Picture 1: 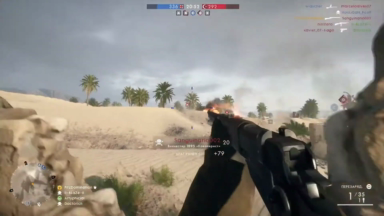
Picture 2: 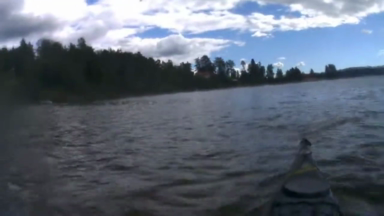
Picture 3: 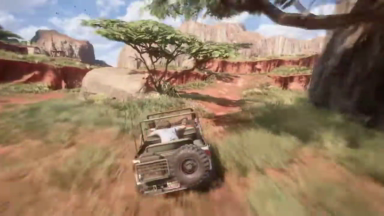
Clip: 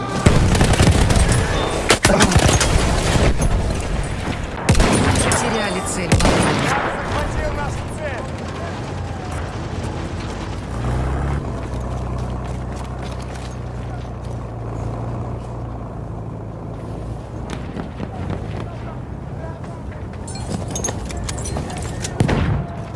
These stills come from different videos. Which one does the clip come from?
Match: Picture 1